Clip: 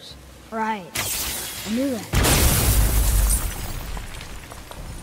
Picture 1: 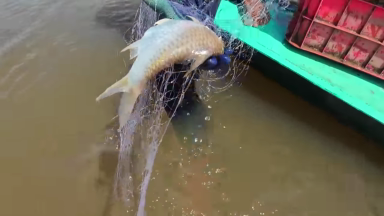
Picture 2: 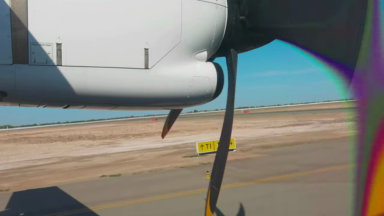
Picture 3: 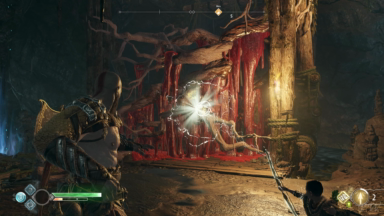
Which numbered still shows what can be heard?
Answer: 3